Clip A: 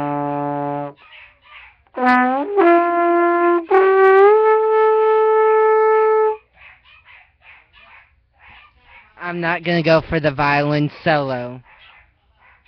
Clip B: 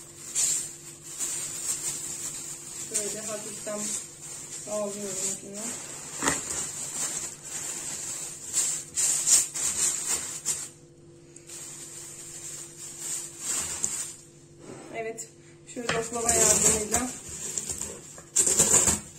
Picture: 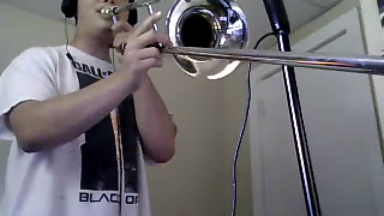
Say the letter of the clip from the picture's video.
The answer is A